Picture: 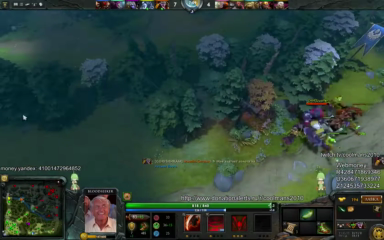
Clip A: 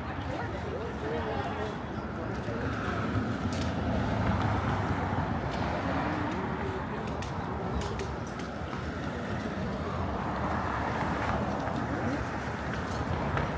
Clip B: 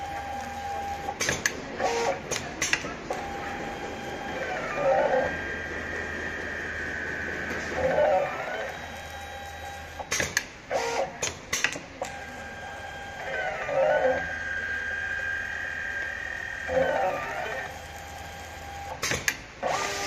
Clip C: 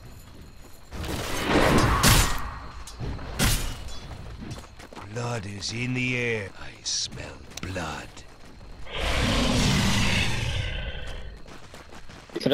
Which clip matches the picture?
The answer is C